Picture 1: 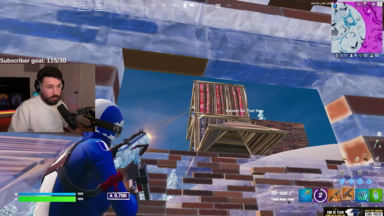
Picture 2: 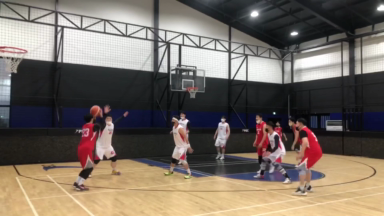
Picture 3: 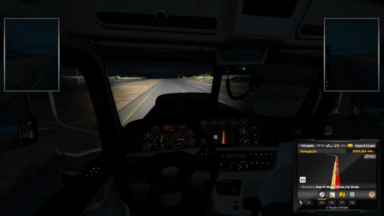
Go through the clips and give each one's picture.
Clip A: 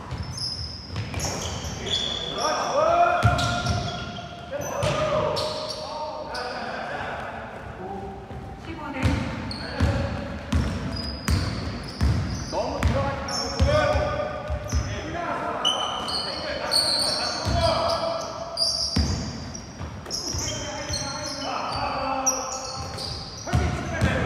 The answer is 2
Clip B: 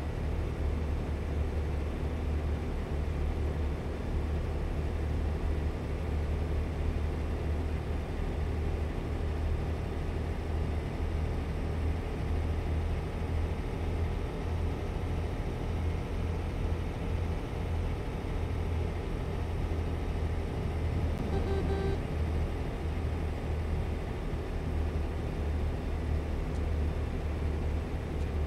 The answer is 3